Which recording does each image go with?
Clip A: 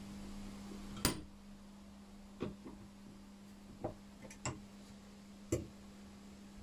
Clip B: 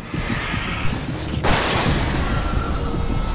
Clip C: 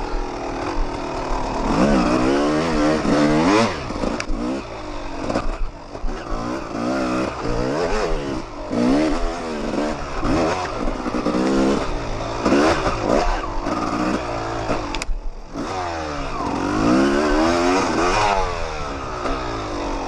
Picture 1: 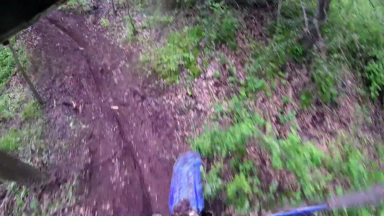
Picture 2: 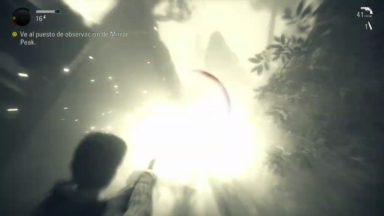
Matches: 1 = C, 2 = B